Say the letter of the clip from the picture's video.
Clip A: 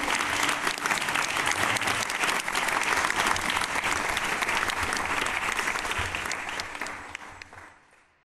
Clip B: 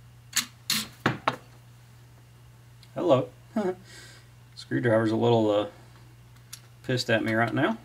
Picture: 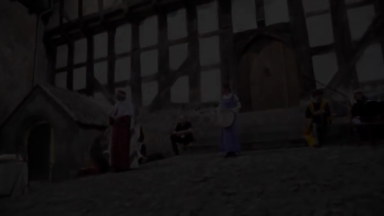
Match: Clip A